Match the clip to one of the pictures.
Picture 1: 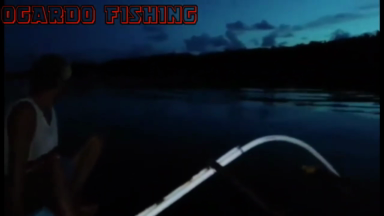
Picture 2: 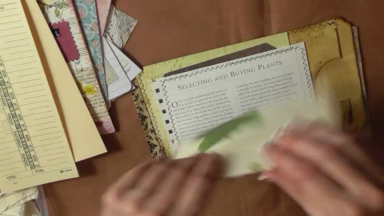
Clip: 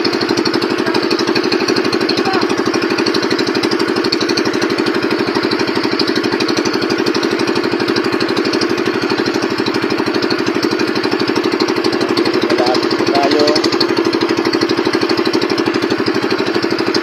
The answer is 1